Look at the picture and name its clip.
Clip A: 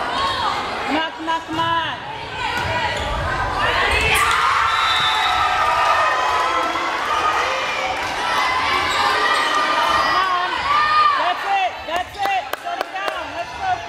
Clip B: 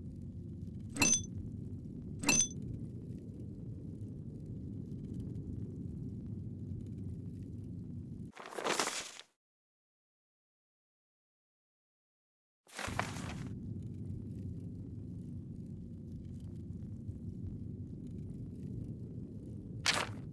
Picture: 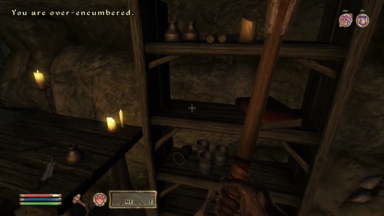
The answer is B